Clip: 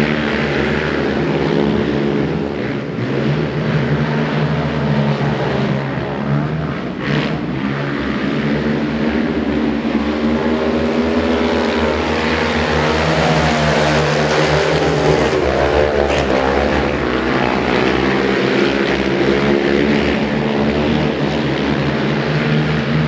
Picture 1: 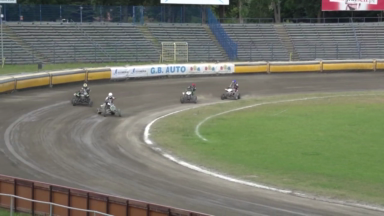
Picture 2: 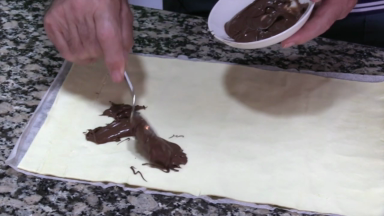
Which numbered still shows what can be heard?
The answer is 1